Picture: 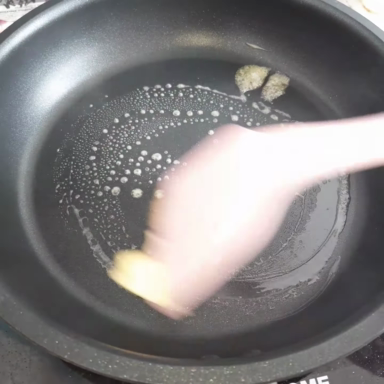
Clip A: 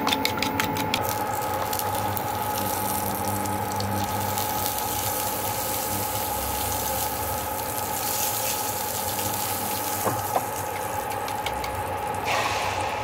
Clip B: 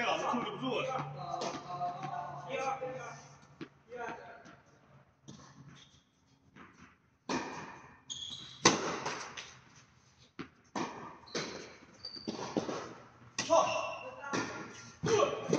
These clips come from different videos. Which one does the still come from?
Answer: A